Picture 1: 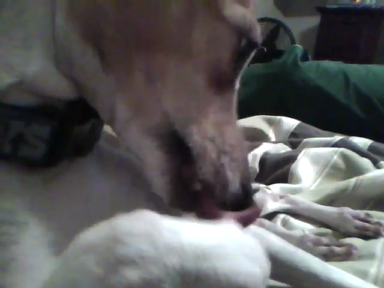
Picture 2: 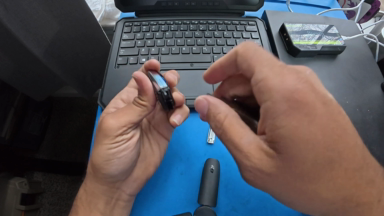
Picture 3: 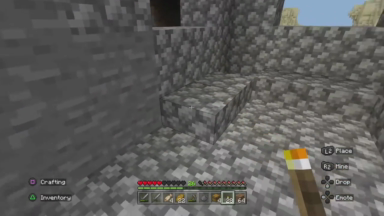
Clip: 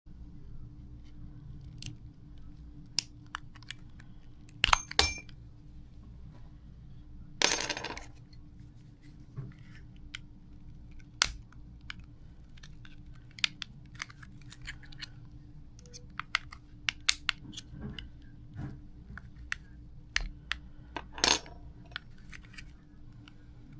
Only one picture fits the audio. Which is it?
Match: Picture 2